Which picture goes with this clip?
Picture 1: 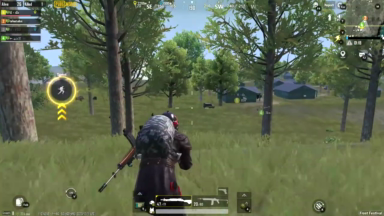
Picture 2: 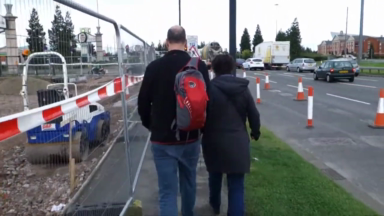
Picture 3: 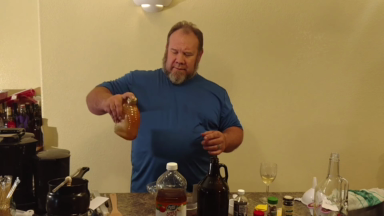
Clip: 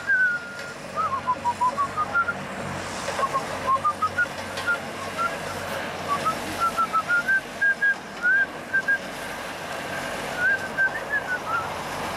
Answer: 2